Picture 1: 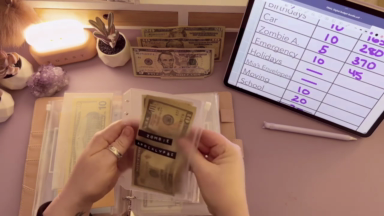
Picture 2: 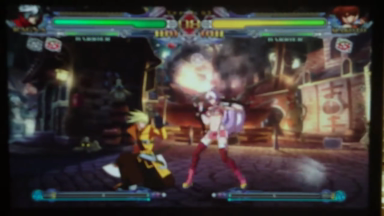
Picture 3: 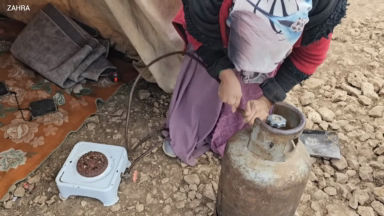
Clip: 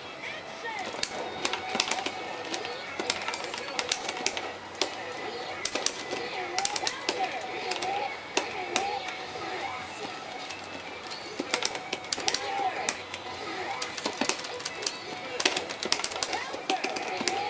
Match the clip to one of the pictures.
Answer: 2